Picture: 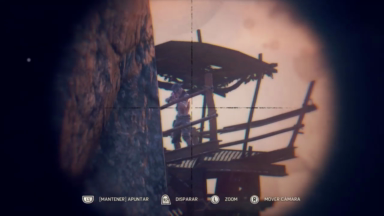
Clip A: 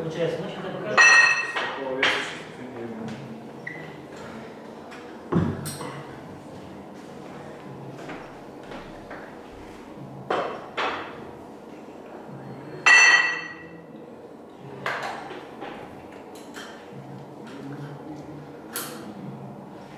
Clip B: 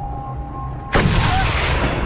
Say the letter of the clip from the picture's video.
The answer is B